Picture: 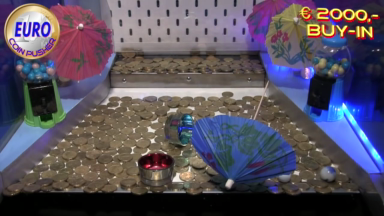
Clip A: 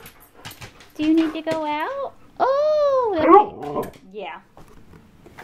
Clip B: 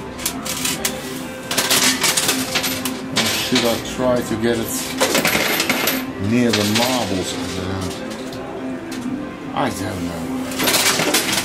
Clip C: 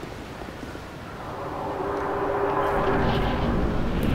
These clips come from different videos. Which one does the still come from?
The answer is B